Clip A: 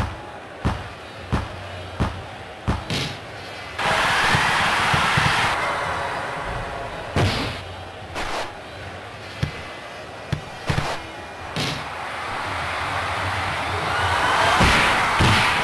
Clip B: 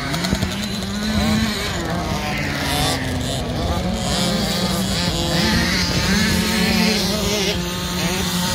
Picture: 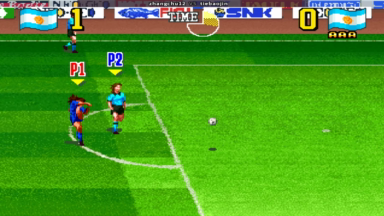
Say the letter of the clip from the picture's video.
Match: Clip A